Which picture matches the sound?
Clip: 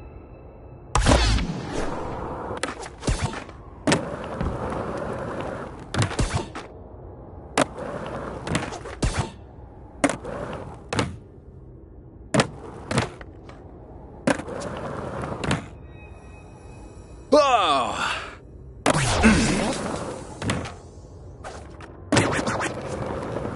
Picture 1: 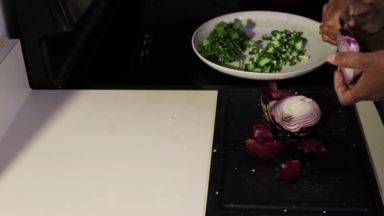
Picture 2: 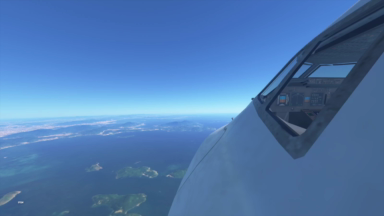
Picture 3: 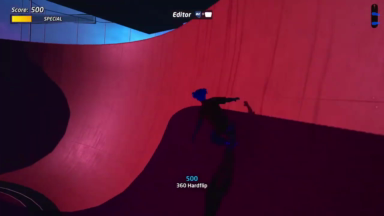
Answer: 3